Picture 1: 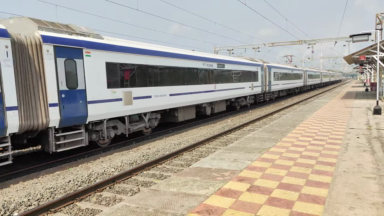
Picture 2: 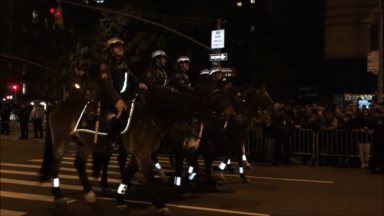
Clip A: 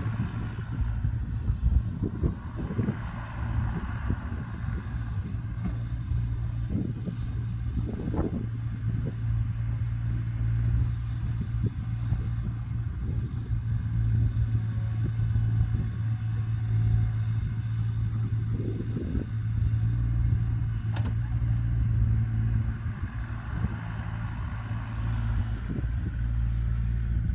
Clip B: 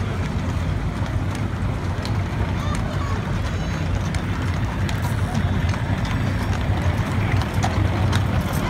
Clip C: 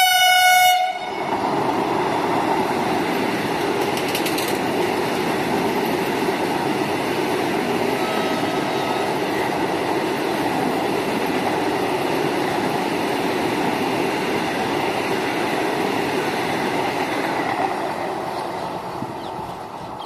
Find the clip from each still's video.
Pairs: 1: C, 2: B